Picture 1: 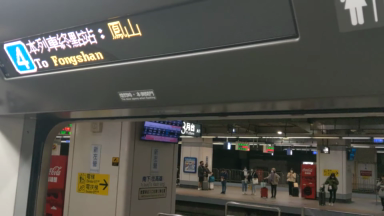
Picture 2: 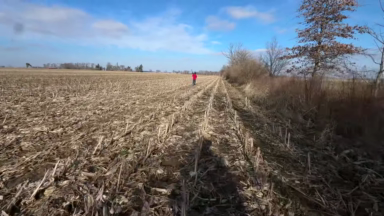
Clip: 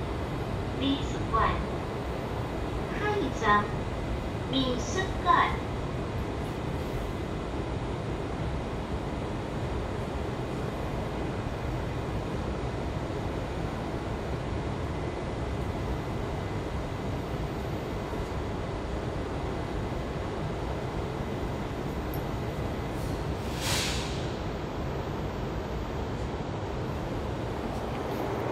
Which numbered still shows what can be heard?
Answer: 1